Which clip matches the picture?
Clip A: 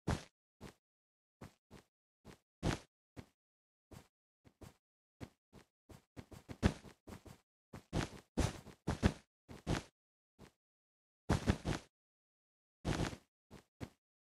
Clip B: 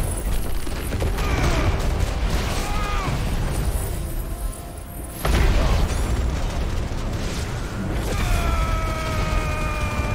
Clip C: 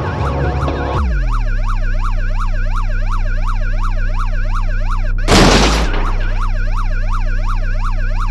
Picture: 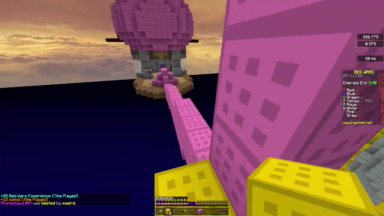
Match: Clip A